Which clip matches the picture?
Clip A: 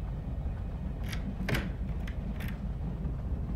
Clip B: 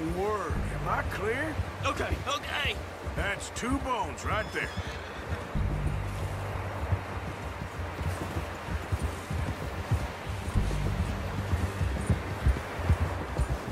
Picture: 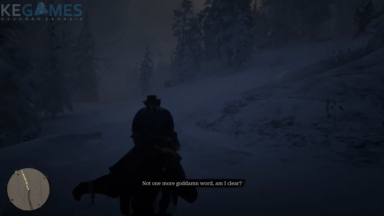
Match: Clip B